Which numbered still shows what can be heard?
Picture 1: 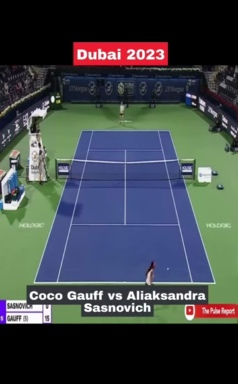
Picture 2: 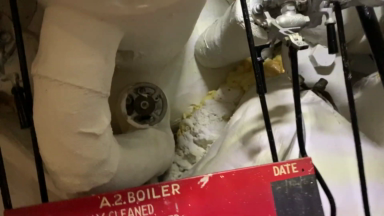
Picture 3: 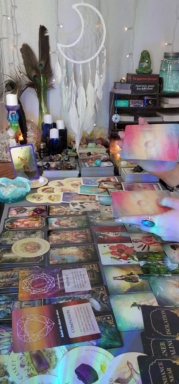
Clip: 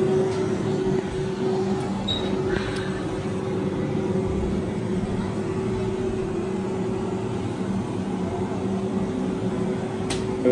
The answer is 2